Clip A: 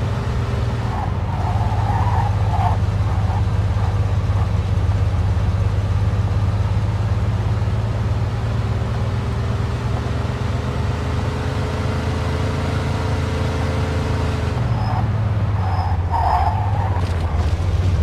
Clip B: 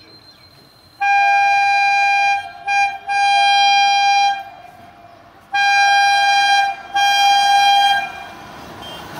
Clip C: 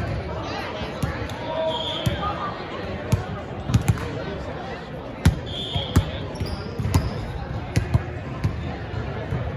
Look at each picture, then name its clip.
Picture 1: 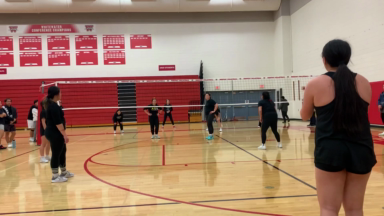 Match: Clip C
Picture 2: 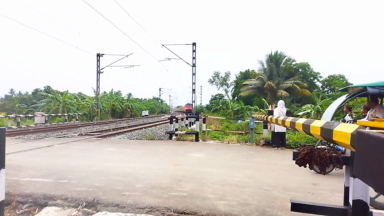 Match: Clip B